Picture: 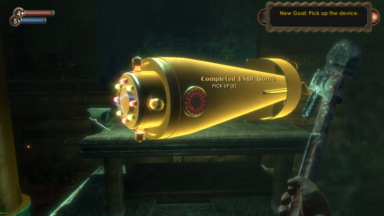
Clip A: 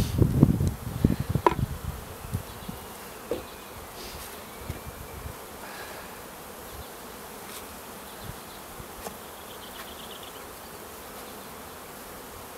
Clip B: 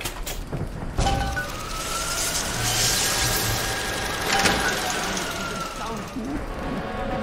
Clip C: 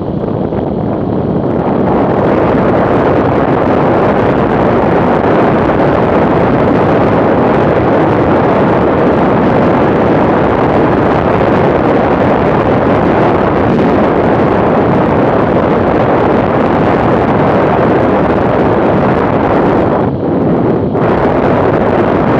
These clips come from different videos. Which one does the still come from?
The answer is B